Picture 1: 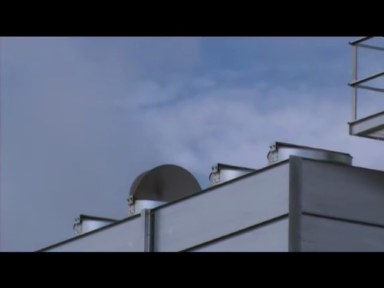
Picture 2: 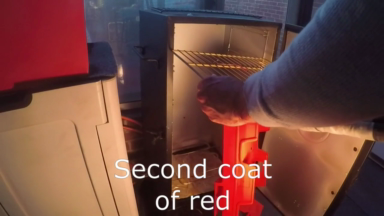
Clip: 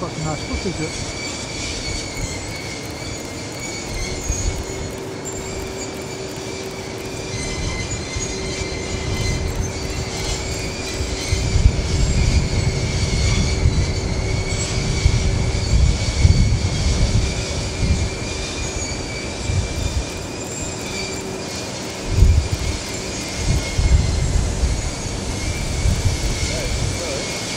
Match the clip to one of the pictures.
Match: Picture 1